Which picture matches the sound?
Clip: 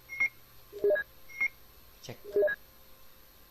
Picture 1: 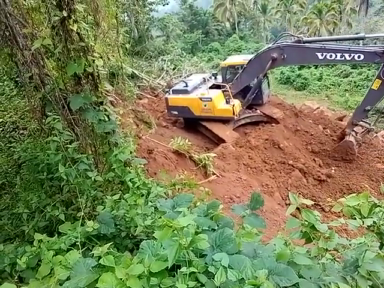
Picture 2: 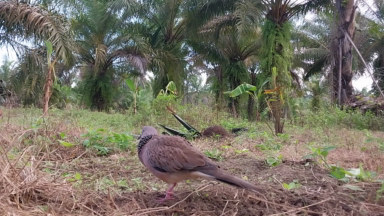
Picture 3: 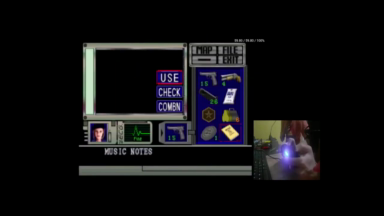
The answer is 3